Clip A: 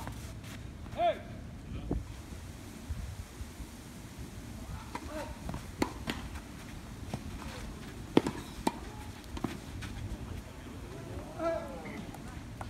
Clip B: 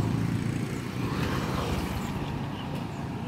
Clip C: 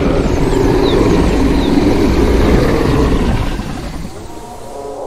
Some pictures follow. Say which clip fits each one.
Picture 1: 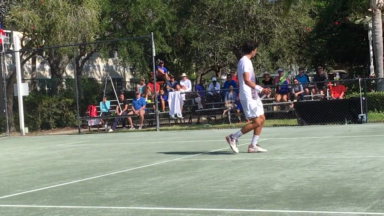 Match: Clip A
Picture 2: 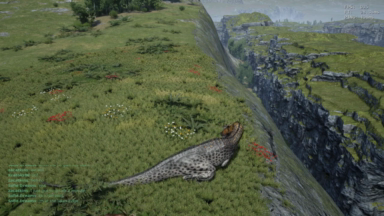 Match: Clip C